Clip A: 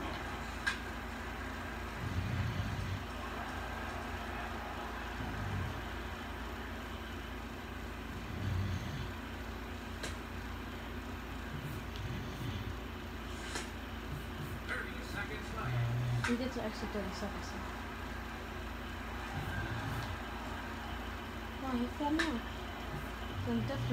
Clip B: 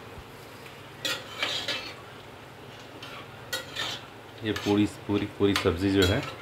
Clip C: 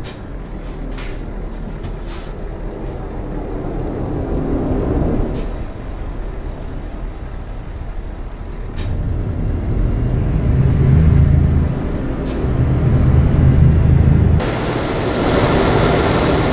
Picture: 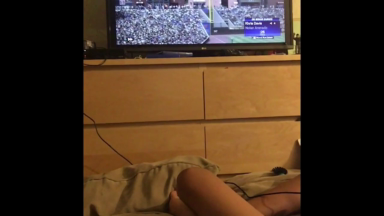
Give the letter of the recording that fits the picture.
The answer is A